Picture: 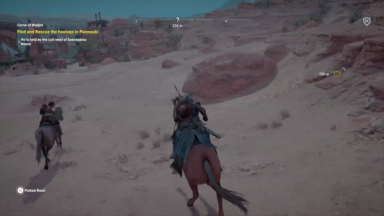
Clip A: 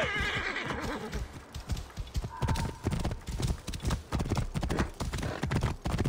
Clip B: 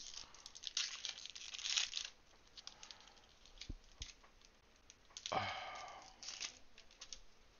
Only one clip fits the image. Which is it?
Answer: A